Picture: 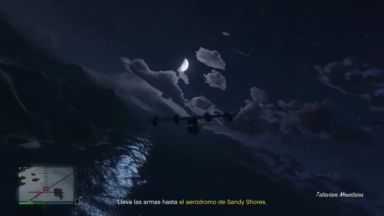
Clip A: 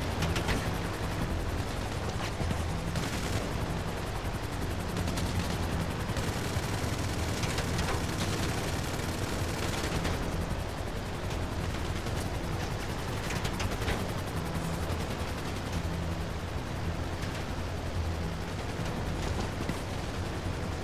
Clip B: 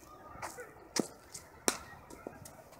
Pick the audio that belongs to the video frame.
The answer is A